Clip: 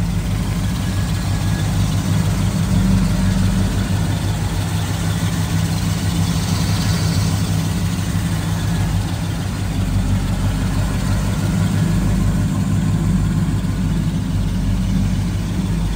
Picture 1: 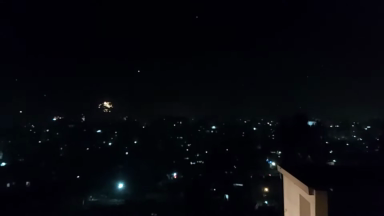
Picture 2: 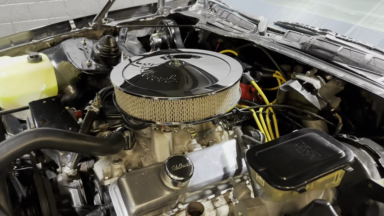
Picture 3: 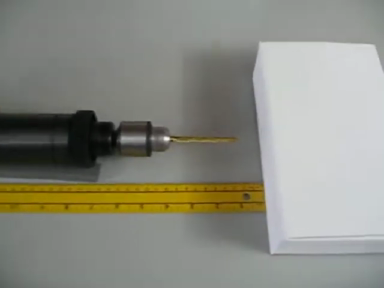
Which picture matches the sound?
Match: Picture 2